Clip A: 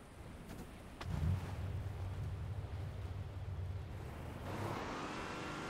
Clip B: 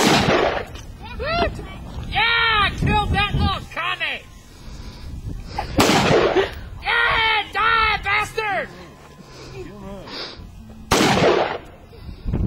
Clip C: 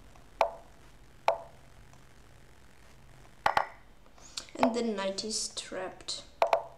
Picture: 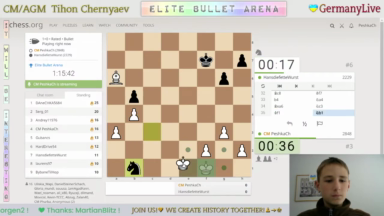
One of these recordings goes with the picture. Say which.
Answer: C